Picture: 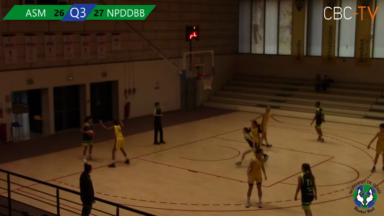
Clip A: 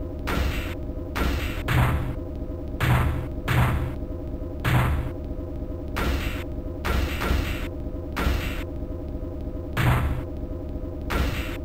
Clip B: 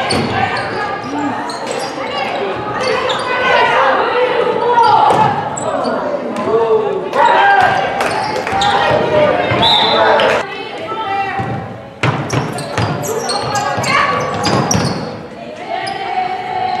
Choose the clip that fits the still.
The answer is B